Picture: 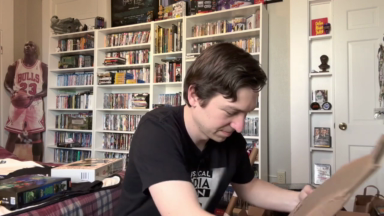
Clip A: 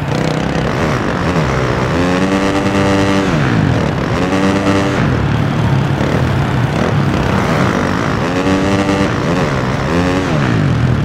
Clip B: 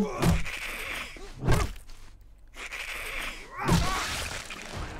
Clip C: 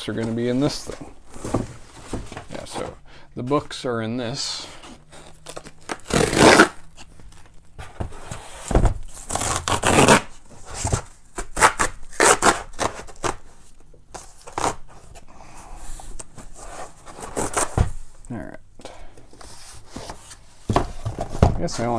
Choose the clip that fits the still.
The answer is C